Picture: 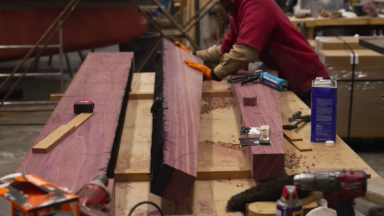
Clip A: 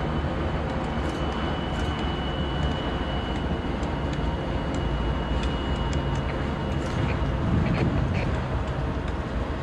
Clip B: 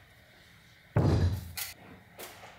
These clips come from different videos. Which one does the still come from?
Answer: B